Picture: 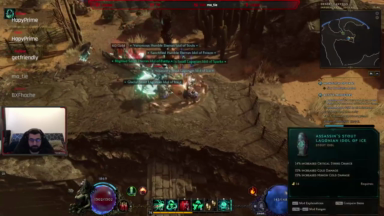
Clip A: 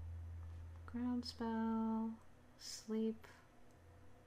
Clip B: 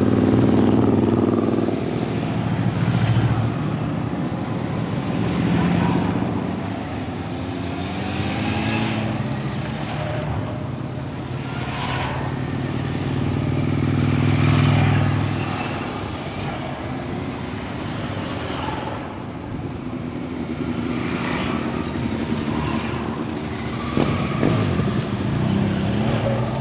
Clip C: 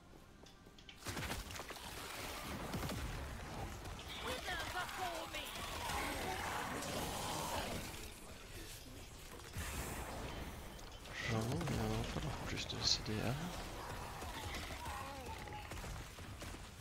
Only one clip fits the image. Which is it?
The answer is C